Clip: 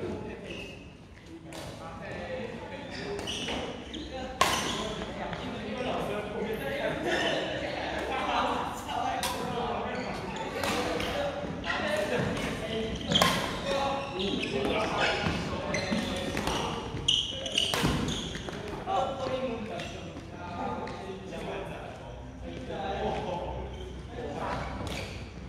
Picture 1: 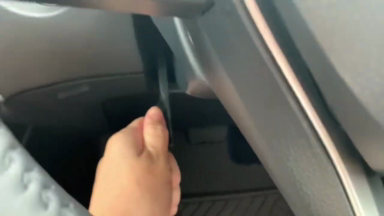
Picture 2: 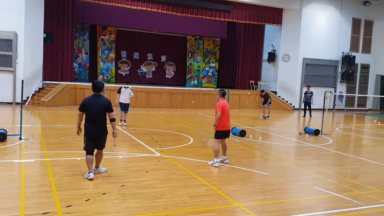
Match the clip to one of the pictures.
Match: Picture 2